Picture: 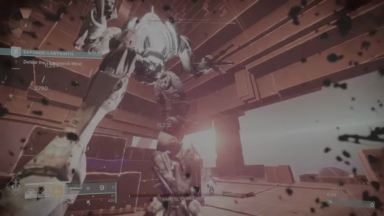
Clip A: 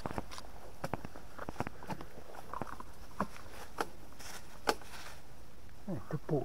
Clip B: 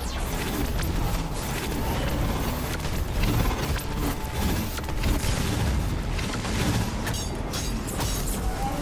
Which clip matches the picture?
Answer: B